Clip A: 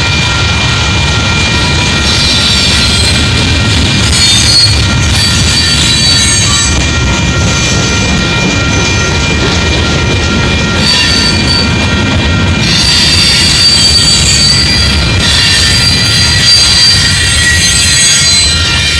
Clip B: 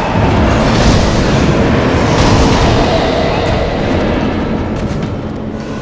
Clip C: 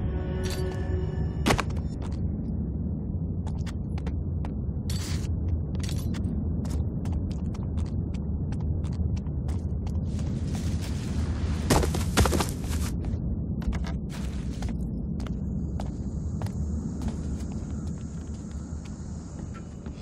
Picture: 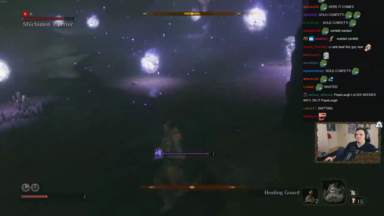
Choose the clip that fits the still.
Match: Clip B